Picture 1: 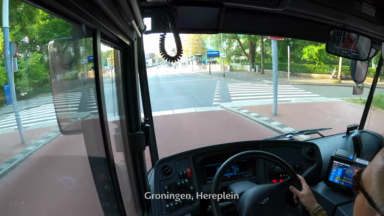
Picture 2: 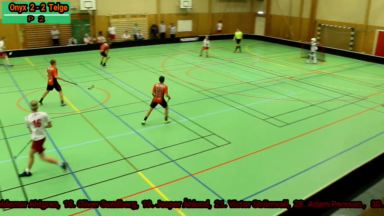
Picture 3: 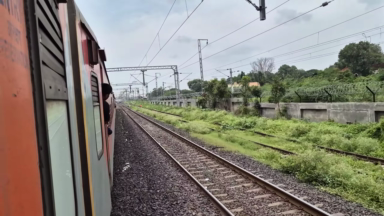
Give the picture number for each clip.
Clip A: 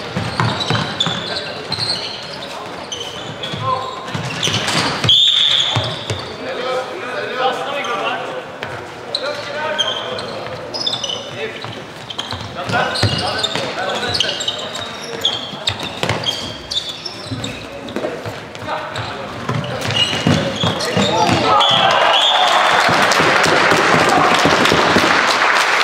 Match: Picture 2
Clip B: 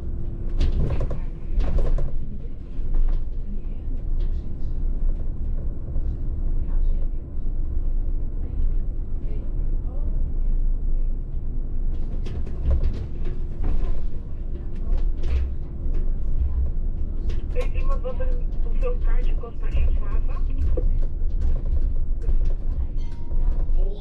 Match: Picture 1